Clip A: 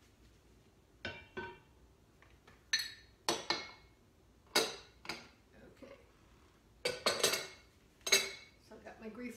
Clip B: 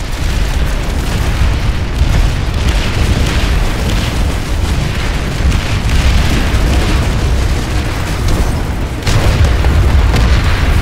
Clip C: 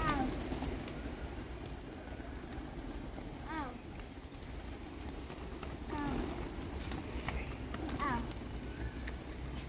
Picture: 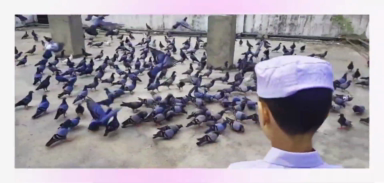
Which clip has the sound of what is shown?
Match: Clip C